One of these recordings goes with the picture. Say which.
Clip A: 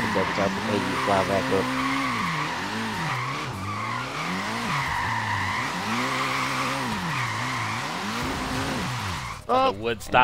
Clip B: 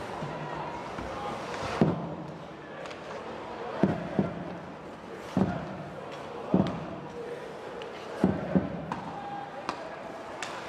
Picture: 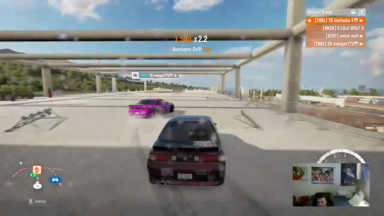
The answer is A